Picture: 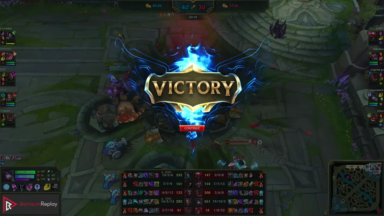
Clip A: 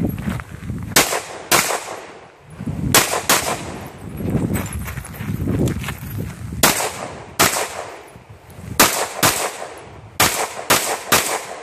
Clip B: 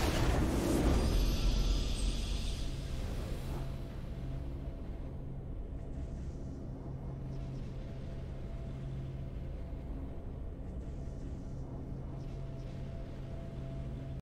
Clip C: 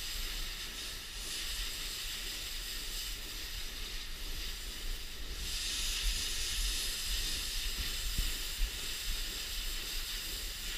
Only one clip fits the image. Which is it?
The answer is B